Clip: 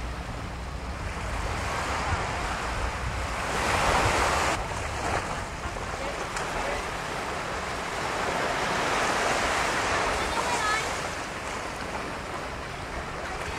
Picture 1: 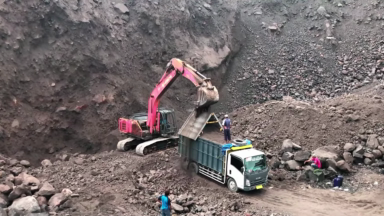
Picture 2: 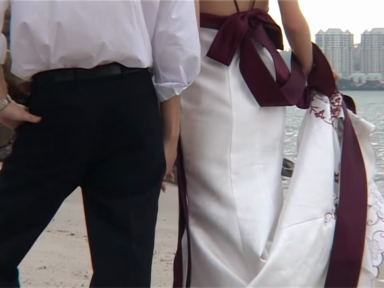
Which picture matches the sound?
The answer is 2